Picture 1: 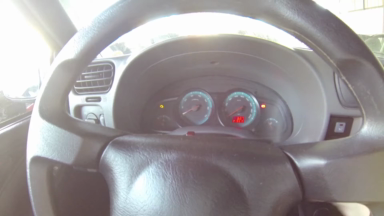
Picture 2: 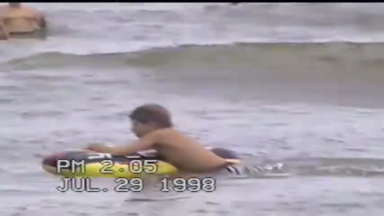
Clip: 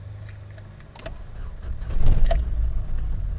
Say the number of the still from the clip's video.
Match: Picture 1